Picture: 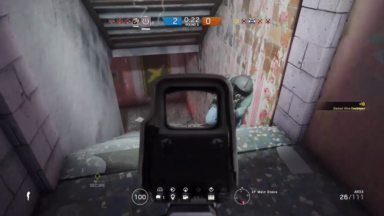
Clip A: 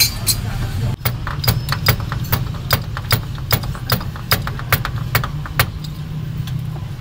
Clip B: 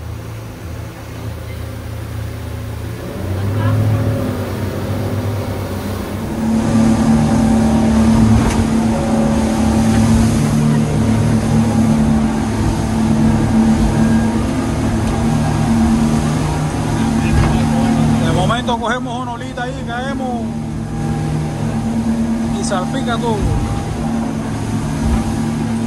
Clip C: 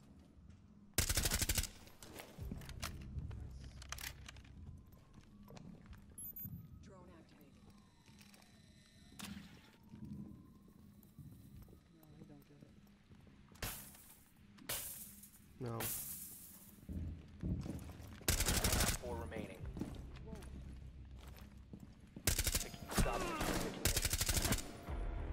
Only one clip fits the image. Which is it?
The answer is C